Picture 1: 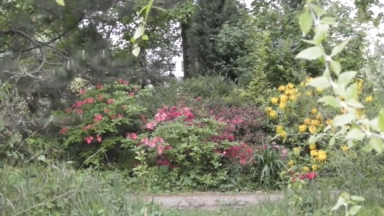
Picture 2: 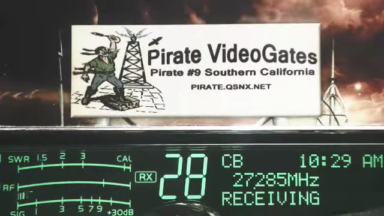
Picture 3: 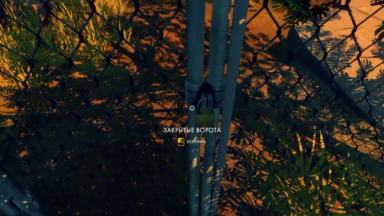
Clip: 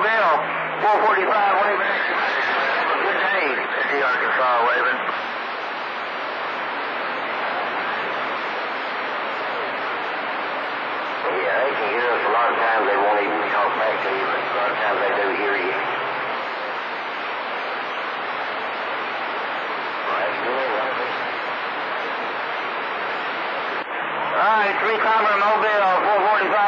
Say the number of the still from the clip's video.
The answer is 2